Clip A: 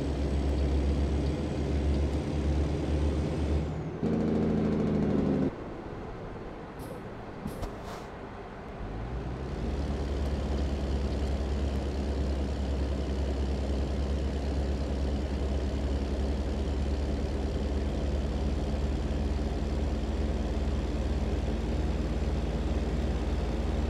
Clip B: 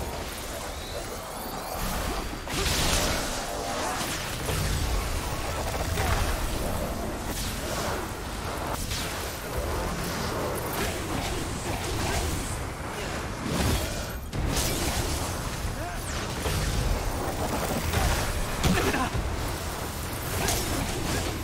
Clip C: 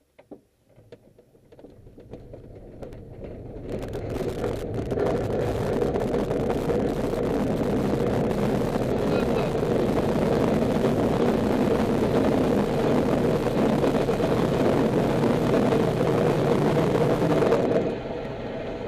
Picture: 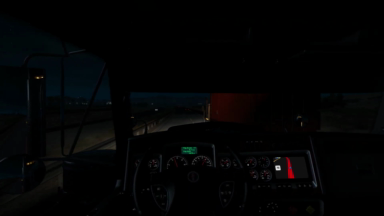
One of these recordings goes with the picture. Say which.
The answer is A